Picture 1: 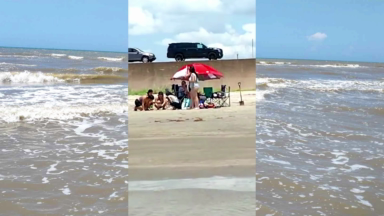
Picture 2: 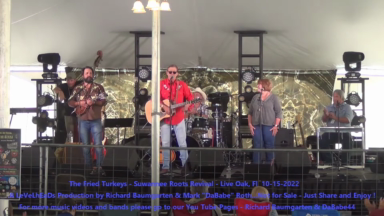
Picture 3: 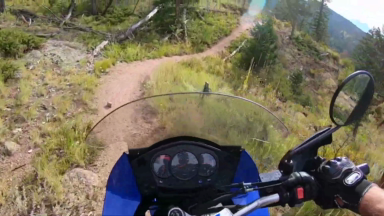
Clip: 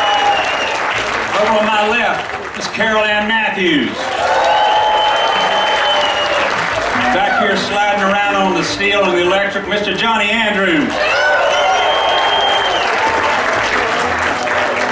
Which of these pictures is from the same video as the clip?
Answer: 2